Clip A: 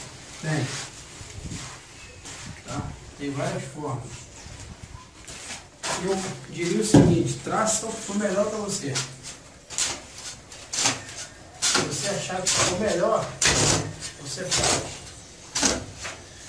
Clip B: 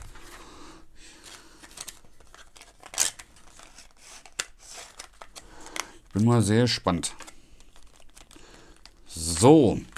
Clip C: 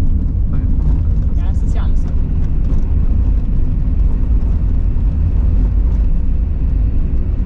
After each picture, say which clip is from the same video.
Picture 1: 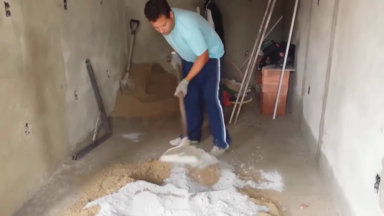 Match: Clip A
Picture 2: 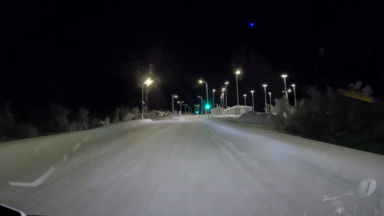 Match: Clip C